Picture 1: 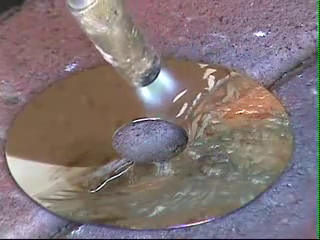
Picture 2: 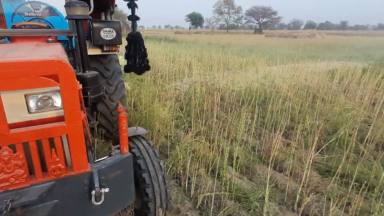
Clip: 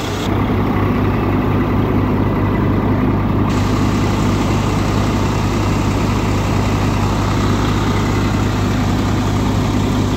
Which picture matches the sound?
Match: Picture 2